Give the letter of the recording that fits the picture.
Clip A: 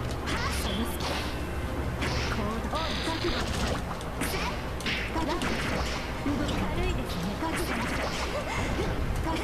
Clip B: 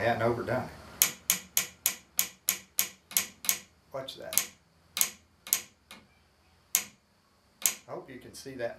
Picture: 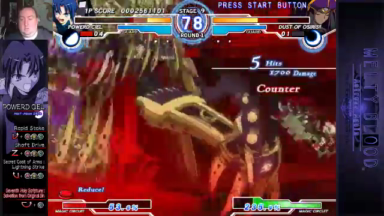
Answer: A